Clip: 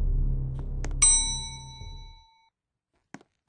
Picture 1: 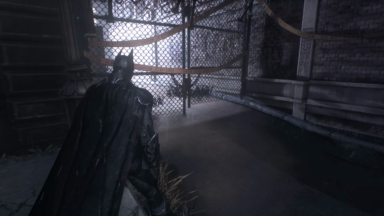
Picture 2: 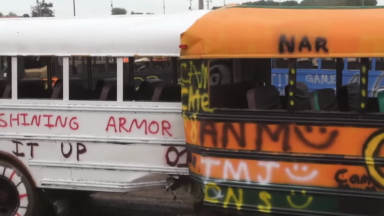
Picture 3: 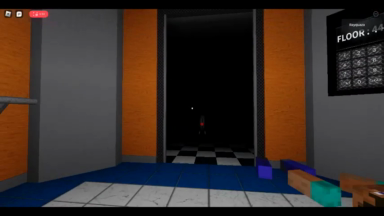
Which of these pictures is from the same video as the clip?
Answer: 3